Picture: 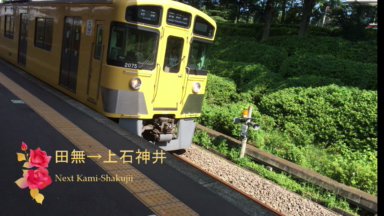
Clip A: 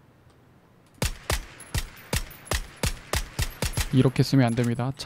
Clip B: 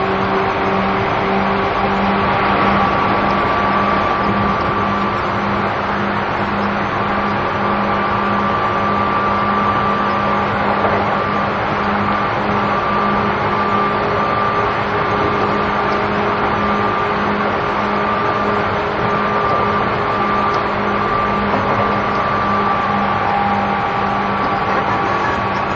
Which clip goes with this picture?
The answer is B